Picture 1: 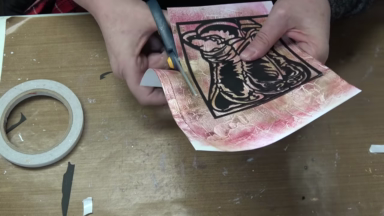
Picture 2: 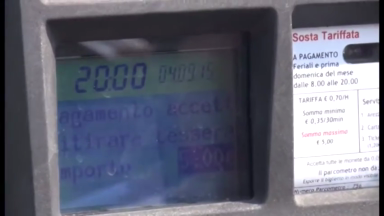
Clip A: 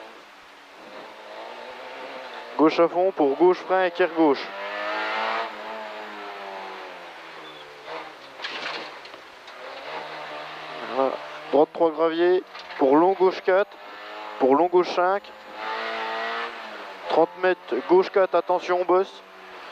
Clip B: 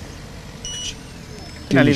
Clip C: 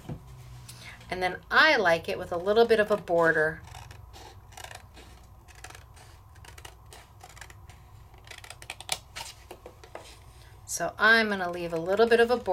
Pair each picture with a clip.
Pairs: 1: C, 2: B